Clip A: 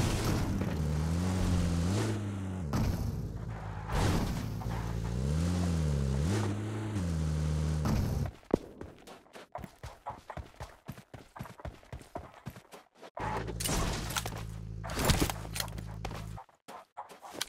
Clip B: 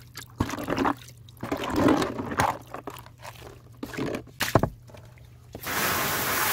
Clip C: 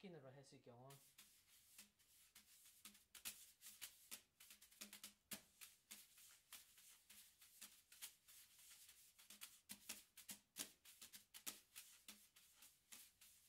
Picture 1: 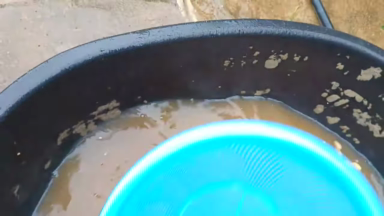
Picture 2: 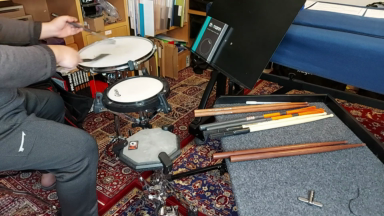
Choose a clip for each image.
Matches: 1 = B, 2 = C